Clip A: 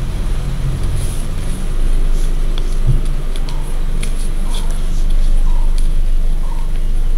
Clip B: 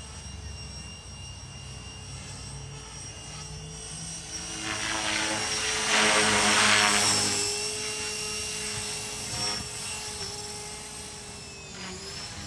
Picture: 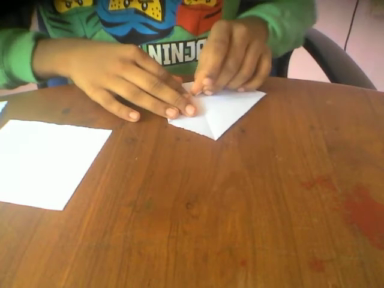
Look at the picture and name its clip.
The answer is A